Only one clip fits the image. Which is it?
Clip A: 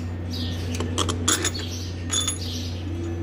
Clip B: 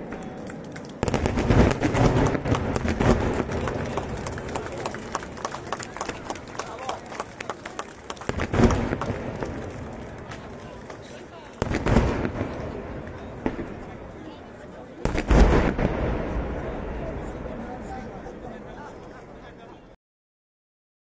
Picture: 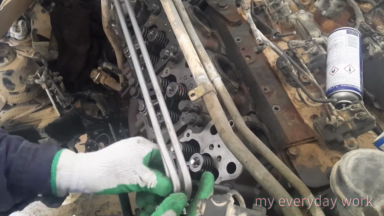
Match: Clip A